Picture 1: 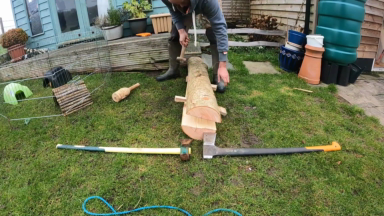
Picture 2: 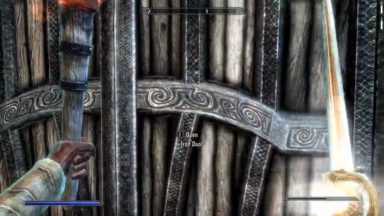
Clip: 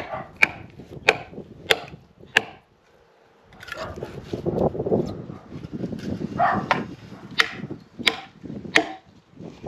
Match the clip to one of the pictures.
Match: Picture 1